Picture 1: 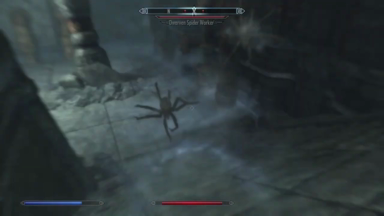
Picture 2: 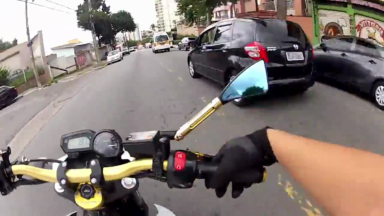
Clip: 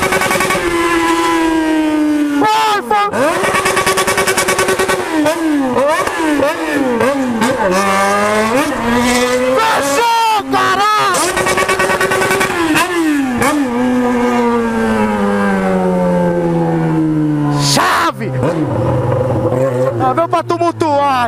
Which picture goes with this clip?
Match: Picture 2